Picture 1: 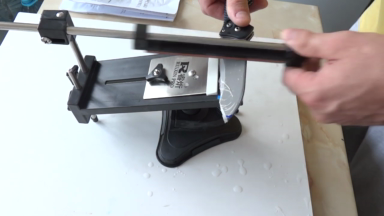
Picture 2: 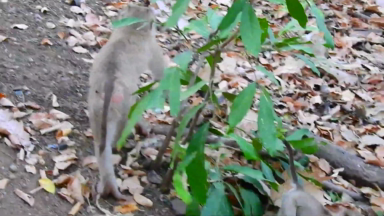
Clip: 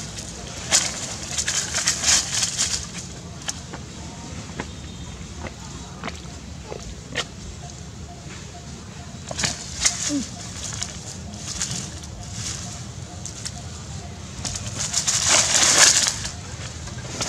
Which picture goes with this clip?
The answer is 2